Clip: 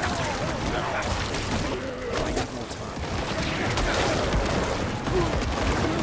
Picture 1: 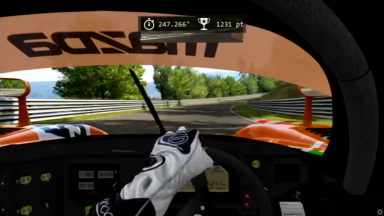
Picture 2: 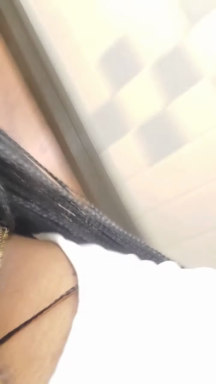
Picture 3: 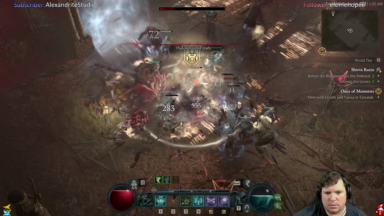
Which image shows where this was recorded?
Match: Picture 3